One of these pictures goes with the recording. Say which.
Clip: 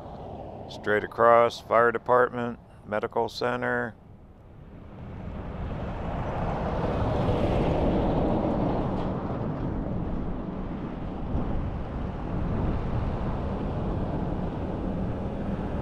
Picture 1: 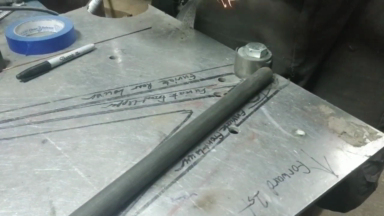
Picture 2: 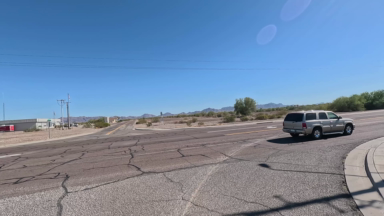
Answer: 2